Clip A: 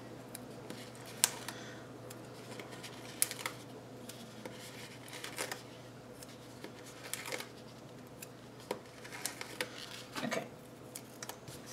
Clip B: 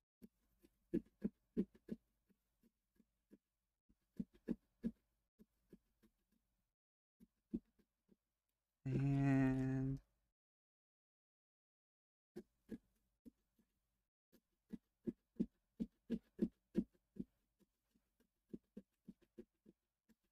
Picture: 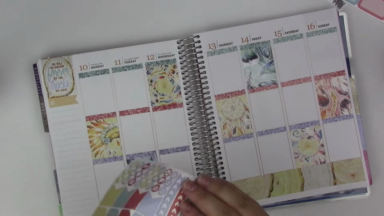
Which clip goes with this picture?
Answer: A